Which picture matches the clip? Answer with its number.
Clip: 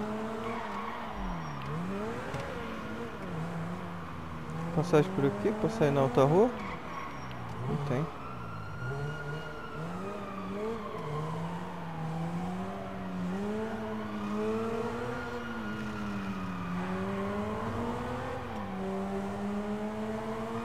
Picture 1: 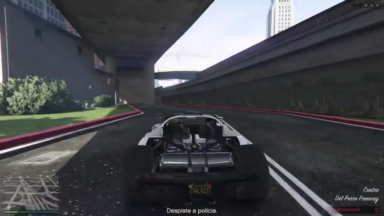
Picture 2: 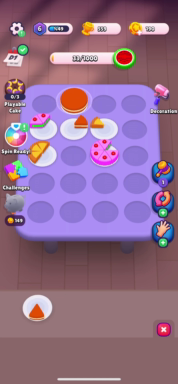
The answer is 1